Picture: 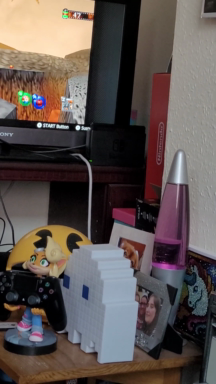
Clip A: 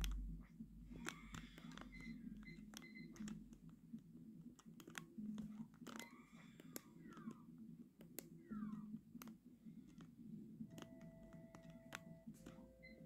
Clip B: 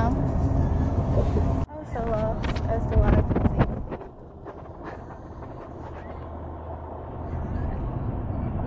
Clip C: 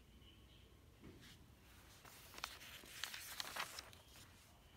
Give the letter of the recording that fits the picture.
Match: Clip A